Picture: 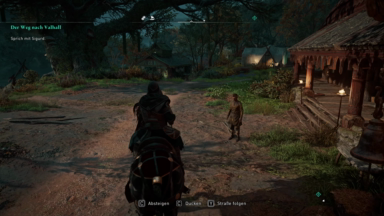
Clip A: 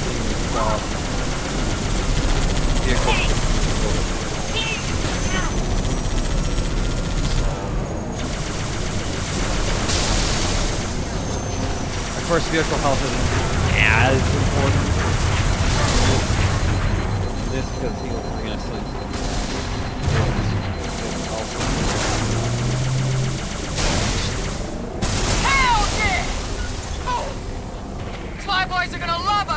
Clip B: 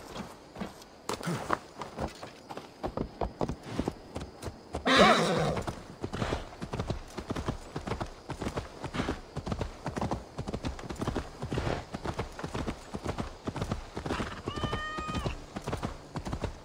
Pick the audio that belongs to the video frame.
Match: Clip B